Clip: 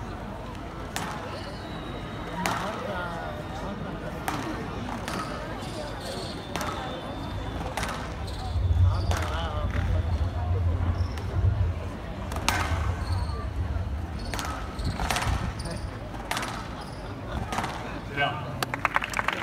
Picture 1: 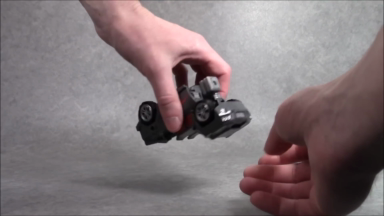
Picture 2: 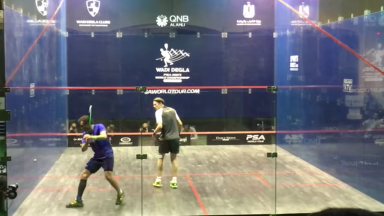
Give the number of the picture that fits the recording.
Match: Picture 2